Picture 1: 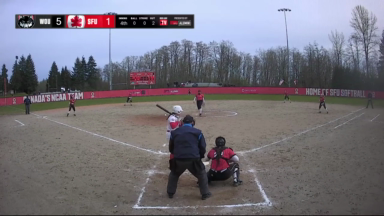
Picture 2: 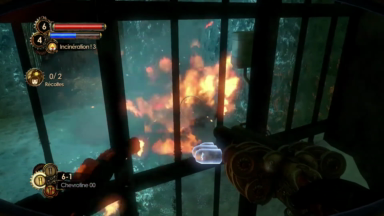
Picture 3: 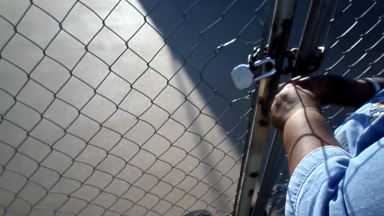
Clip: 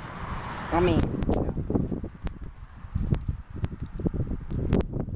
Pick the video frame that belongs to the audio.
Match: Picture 3